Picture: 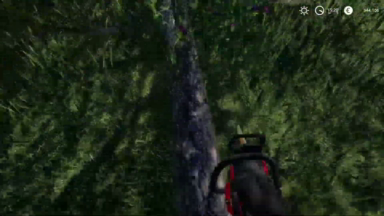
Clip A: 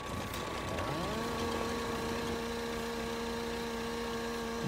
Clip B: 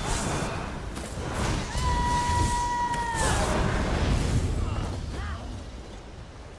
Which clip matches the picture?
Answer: A